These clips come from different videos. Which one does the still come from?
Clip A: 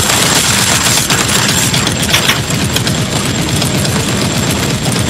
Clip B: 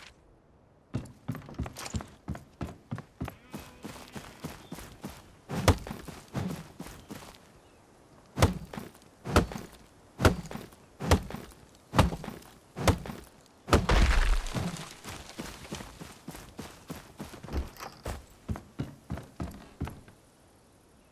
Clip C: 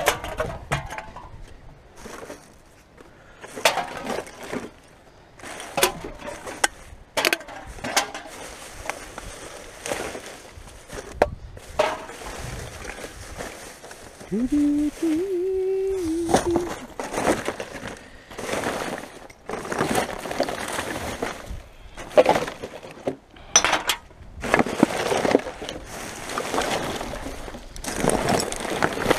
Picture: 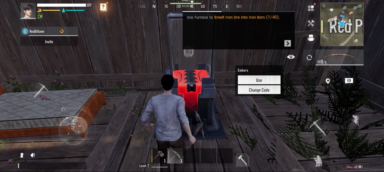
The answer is B